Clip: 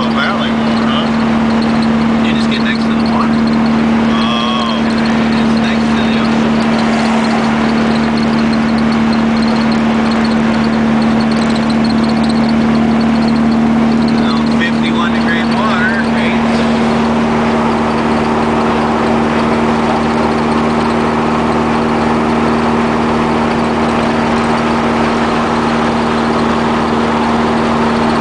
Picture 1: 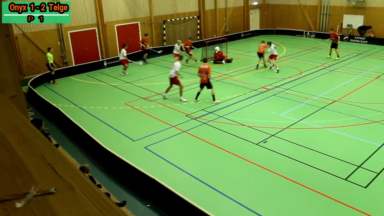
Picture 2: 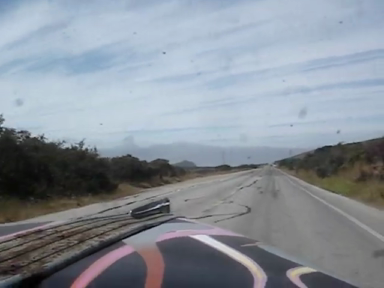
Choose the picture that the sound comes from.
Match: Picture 2